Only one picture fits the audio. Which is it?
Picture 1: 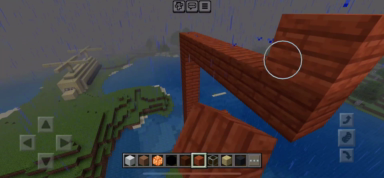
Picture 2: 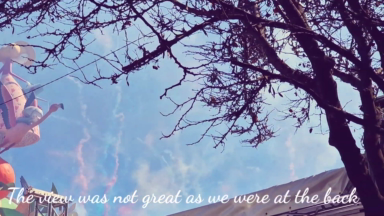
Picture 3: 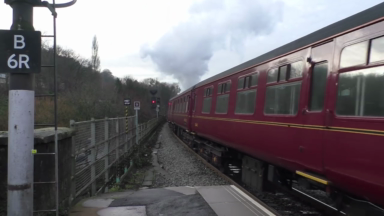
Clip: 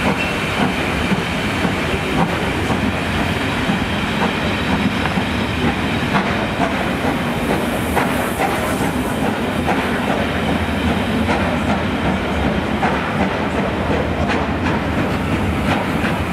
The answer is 3